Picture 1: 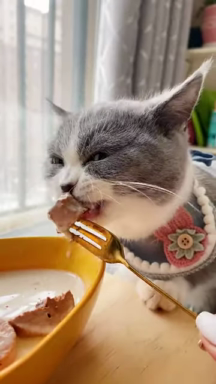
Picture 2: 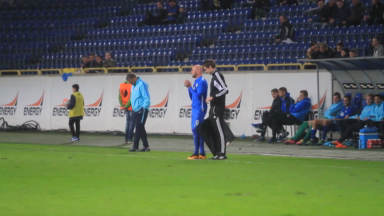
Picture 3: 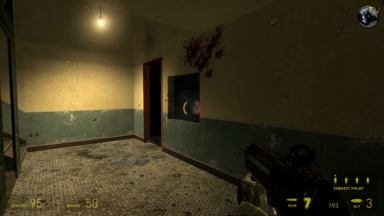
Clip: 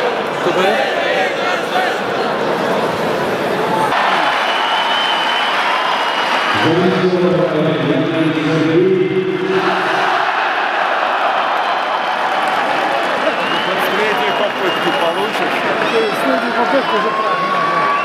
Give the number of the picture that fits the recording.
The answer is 2